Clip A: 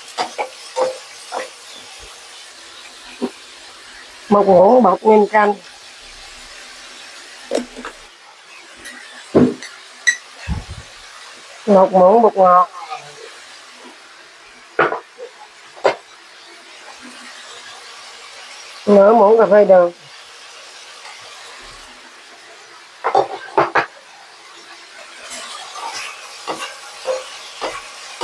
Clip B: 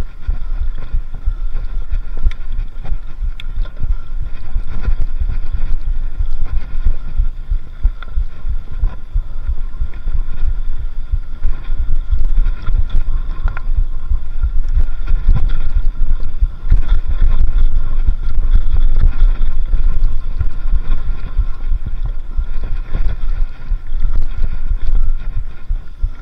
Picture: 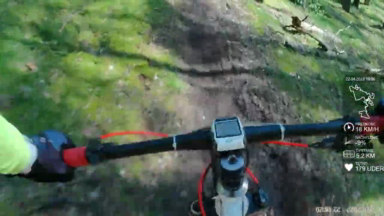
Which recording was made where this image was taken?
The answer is B